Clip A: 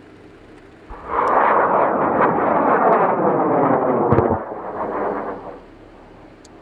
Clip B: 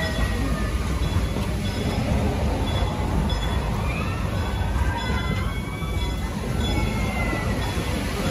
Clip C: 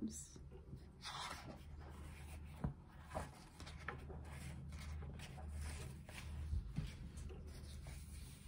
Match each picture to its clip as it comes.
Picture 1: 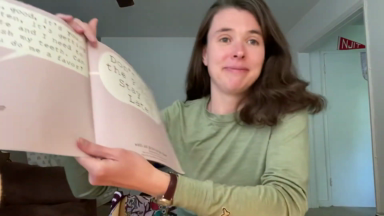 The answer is C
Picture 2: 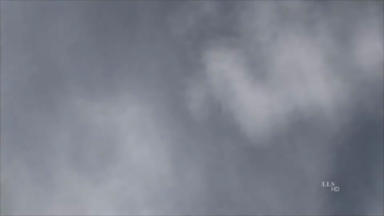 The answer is A